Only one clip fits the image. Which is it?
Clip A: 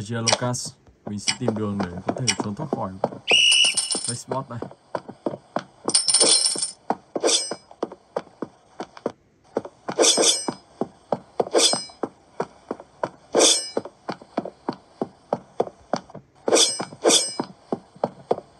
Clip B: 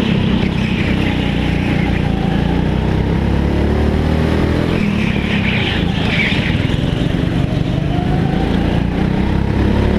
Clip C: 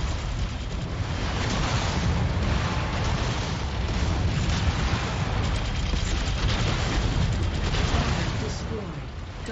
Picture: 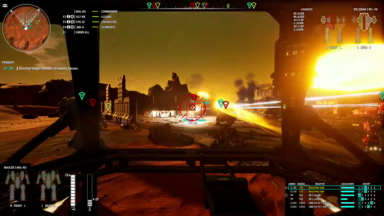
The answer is C